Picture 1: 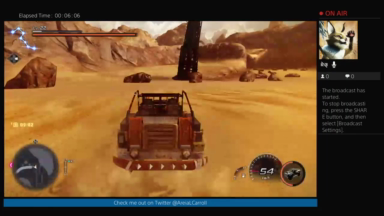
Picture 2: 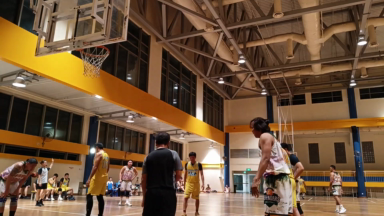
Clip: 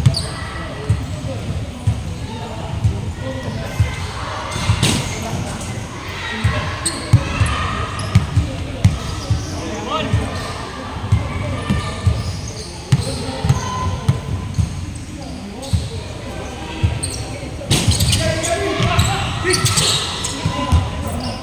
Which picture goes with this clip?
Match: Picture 2